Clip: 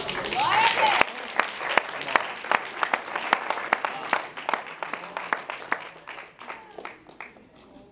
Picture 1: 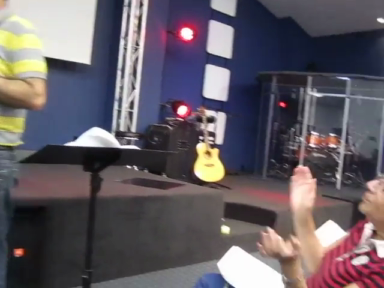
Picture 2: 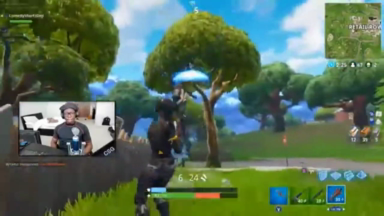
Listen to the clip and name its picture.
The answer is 1